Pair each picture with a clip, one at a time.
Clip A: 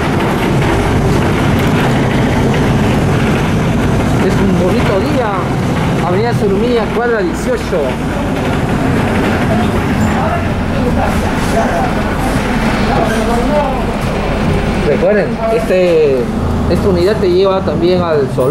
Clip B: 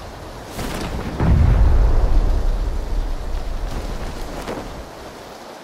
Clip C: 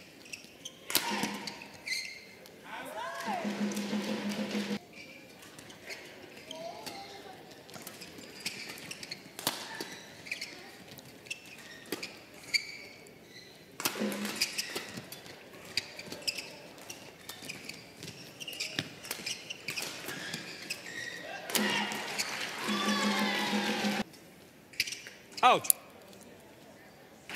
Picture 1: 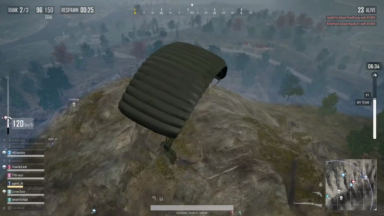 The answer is B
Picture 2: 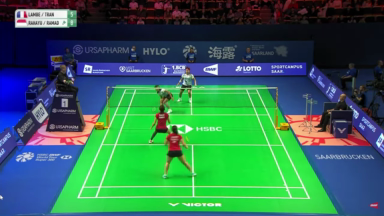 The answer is C